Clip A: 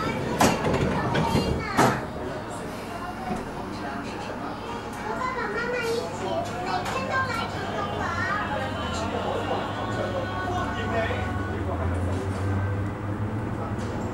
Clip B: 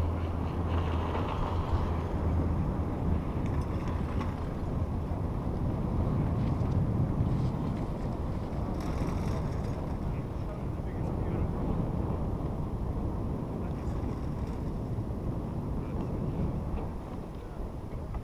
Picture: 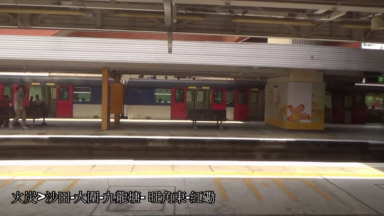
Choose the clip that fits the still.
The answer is A